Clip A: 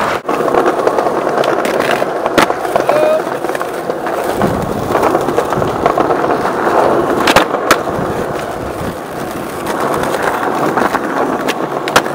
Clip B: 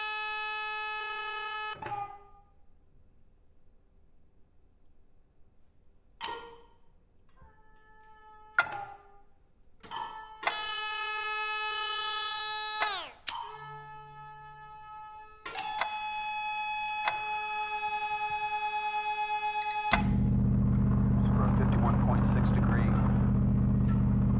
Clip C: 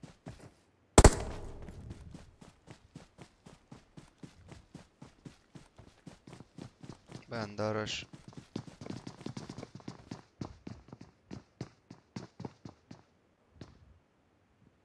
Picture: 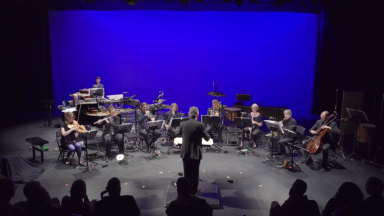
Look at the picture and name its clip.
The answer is B